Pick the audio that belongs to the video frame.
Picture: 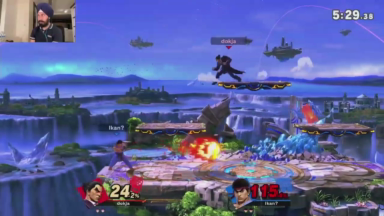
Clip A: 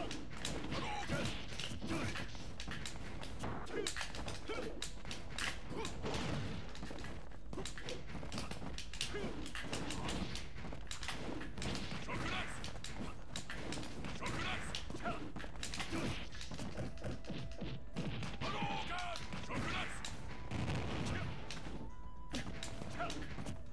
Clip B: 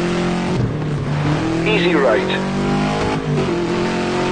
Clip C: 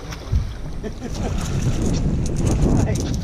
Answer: A